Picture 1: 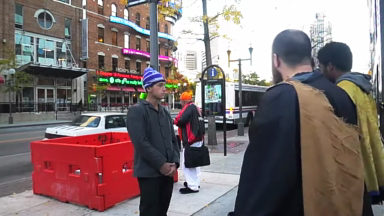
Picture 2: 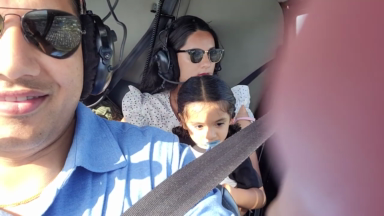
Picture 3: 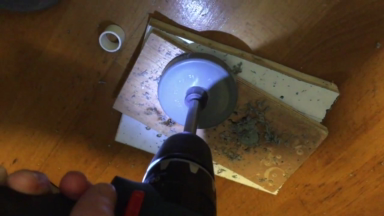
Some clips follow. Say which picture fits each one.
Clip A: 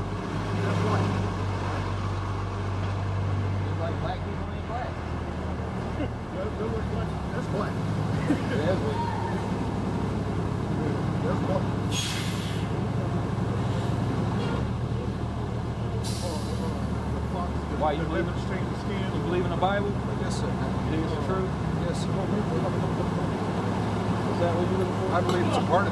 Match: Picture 1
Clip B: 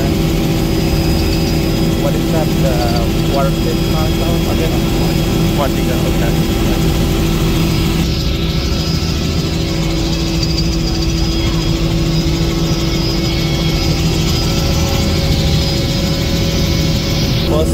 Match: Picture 2